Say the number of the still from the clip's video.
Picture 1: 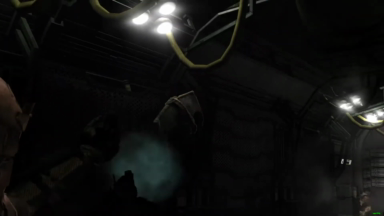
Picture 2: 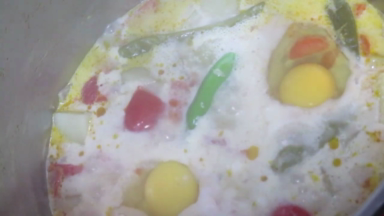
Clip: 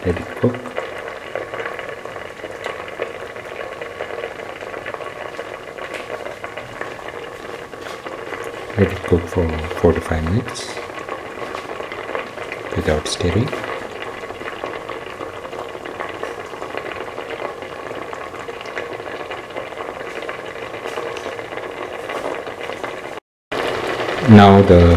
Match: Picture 2